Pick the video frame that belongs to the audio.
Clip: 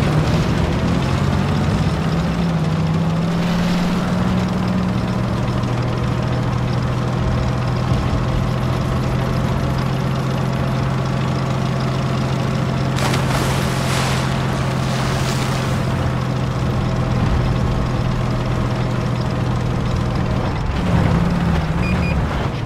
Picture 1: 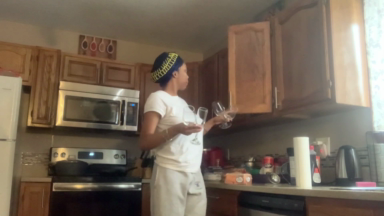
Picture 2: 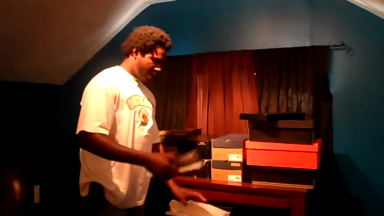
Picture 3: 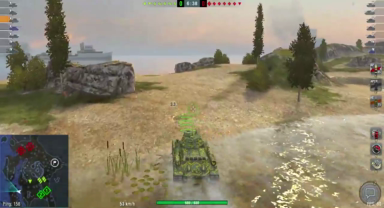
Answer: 3